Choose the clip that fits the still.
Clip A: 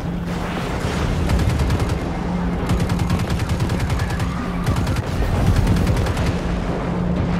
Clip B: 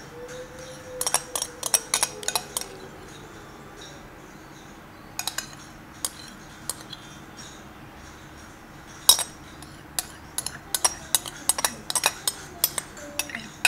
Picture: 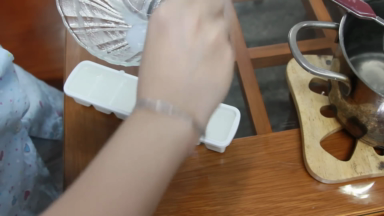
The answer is B